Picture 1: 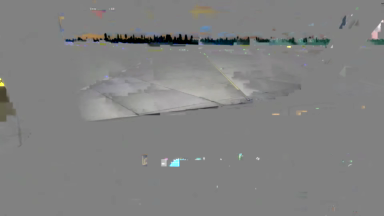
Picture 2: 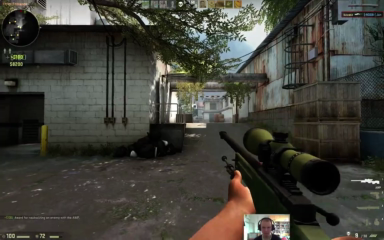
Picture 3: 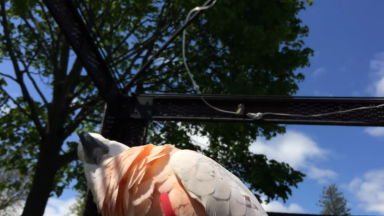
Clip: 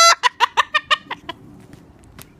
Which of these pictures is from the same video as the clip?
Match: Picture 3